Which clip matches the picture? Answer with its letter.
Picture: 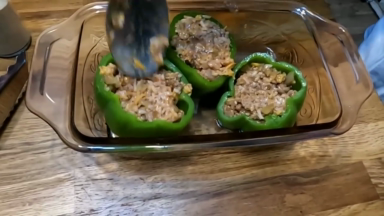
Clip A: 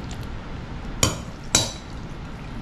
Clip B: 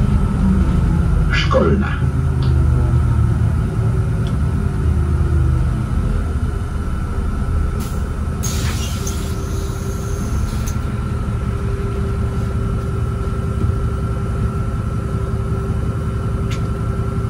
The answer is A